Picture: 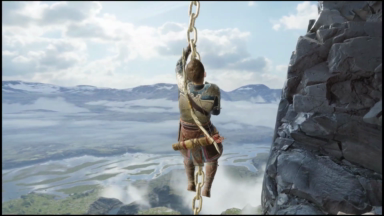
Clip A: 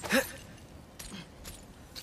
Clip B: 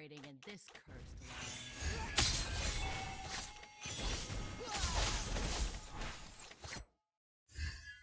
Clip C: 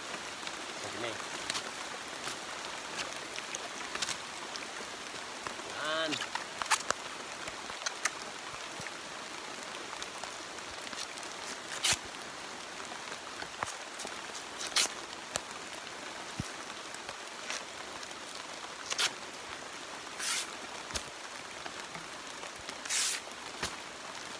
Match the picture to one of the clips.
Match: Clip A